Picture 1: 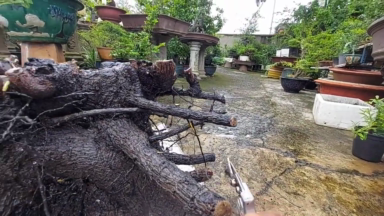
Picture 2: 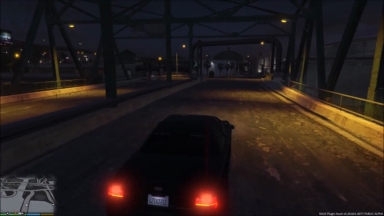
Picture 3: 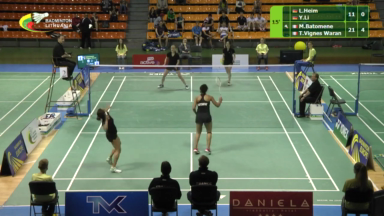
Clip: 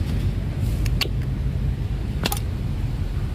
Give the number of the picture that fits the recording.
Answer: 1